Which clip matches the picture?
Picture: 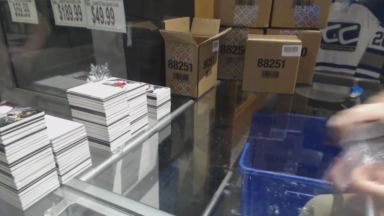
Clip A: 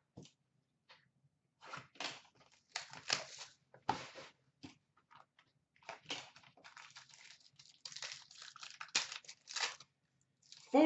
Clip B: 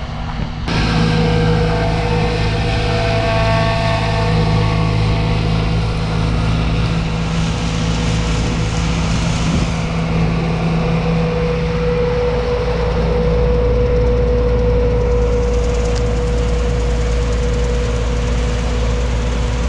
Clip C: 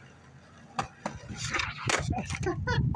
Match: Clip A